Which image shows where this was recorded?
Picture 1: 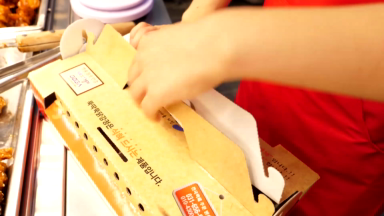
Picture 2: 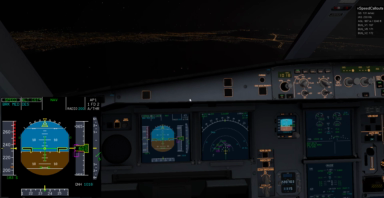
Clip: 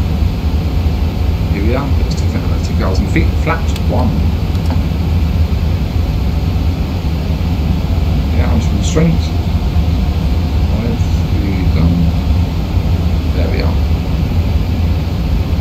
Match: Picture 2